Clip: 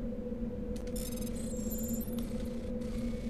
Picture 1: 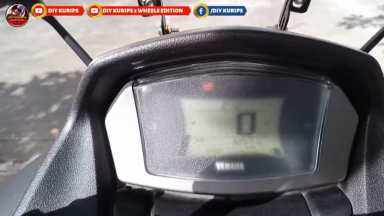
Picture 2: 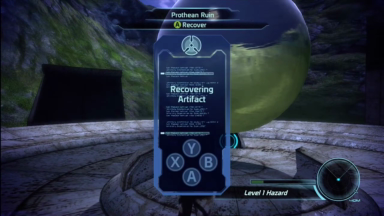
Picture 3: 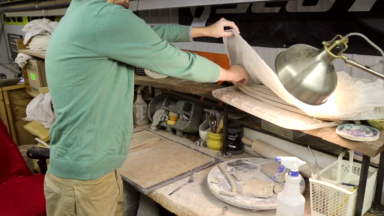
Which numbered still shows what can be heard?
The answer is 2